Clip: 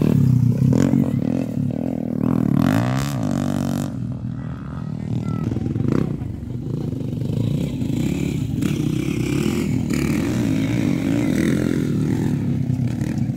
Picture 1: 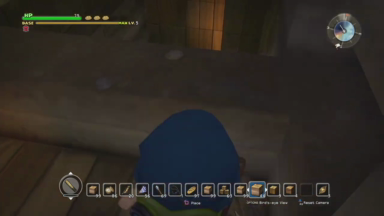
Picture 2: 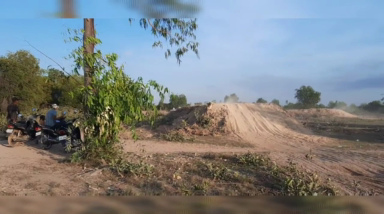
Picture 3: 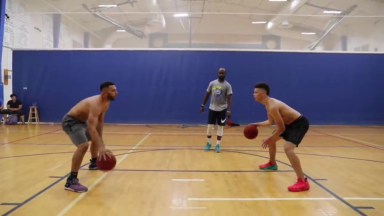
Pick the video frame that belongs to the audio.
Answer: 2